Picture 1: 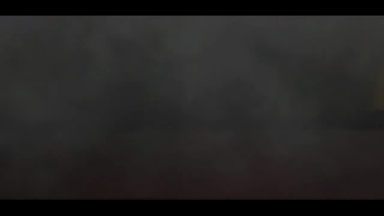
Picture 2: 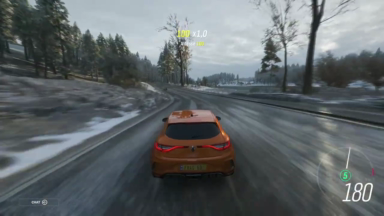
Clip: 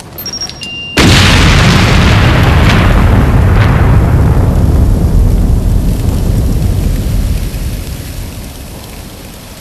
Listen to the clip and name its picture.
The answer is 1